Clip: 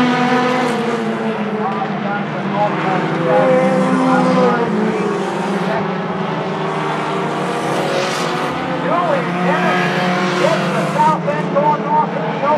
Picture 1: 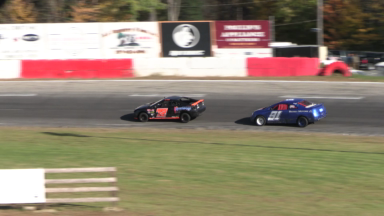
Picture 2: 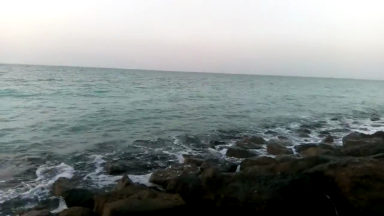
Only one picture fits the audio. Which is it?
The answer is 1